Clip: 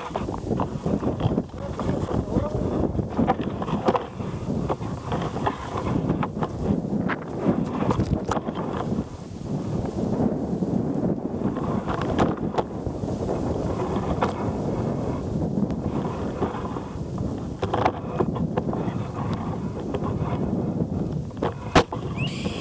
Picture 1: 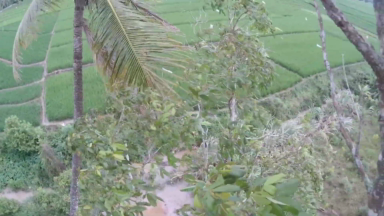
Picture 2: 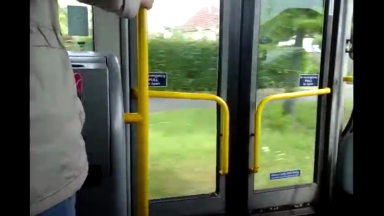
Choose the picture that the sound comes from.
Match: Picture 1